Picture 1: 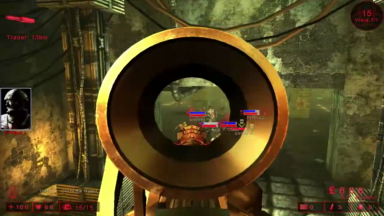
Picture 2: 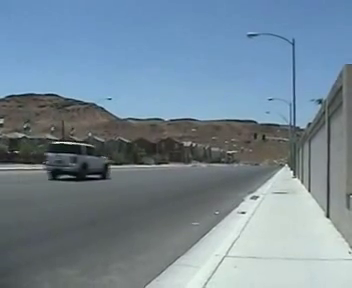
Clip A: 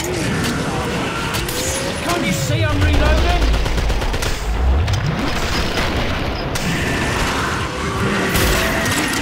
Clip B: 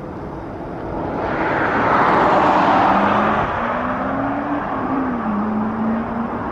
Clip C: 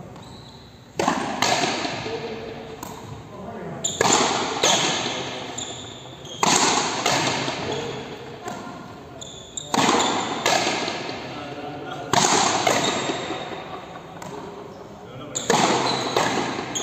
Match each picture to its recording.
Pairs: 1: A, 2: B